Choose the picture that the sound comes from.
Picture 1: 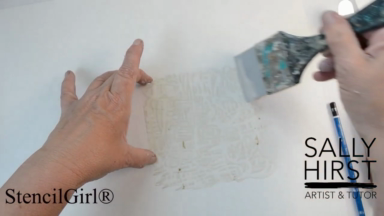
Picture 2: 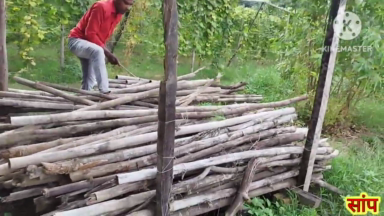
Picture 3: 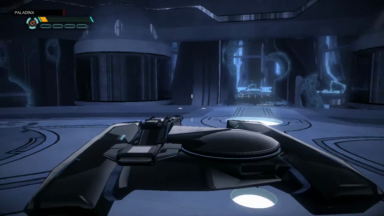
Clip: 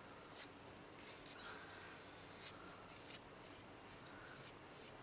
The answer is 1